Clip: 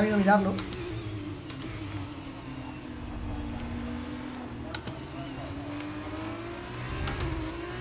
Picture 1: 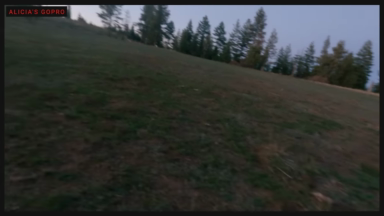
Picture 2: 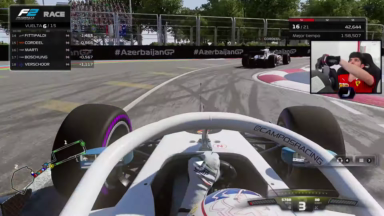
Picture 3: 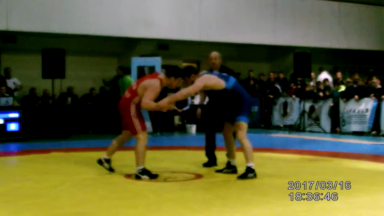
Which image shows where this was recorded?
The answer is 2